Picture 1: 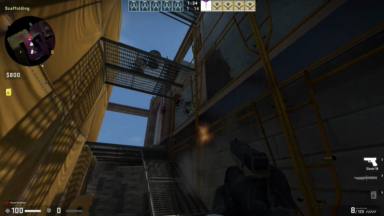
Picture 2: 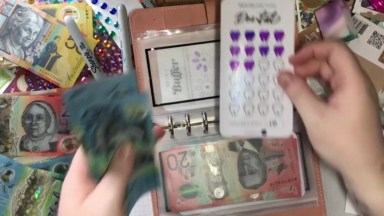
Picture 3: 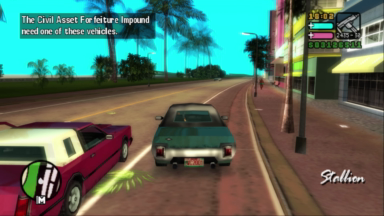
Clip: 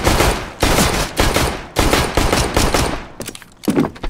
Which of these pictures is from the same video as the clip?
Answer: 1